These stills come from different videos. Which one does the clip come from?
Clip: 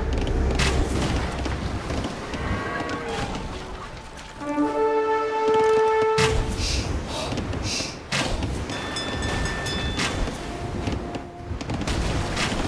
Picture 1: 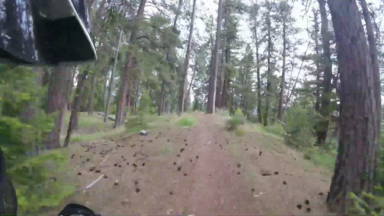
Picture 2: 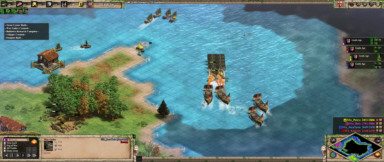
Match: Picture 2